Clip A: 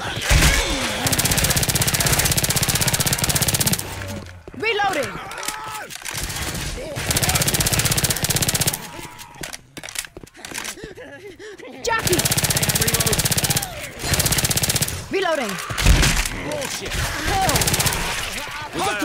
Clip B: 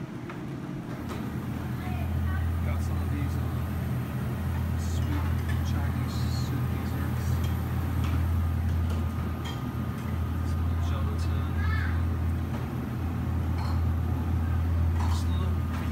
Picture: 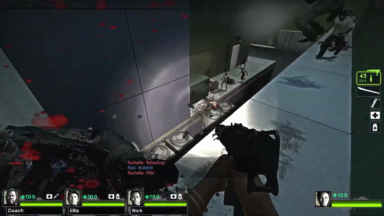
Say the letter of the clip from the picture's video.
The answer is A